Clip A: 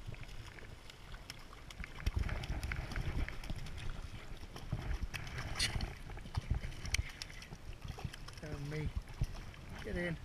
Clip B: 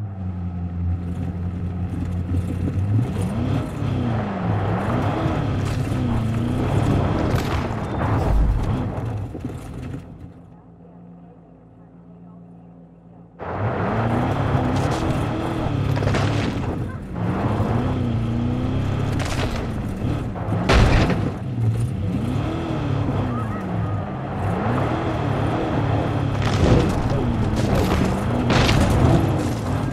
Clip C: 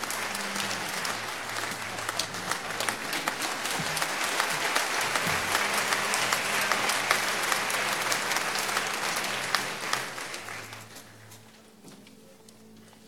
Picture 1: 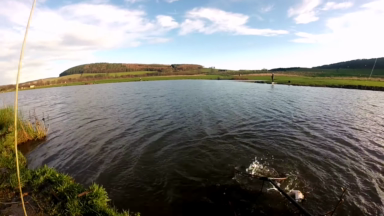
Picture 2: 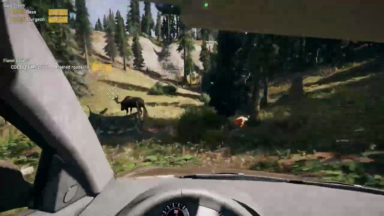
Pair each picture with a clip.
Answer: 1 A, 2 B